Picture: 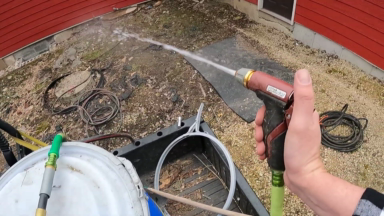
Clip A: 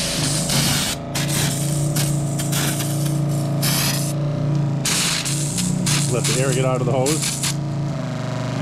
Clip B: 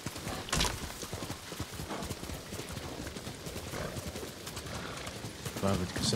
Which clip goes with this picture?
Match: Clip A